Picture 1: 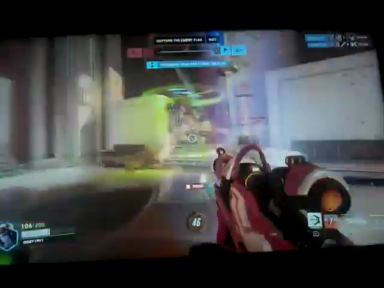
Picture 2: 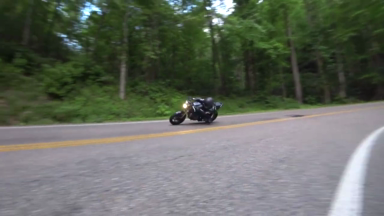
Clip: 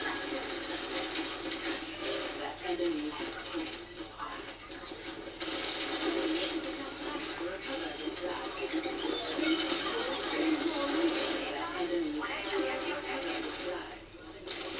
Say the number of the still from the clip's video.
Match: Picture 1